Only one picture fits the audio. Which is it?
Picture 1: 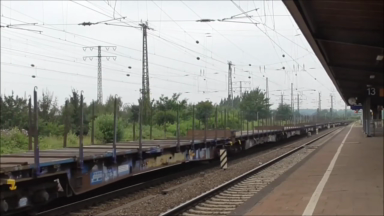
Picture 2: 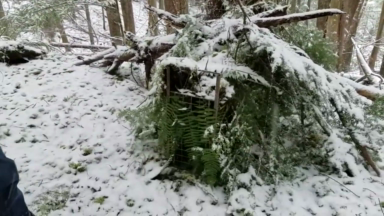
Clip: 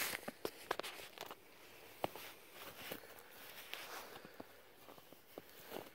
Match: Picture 2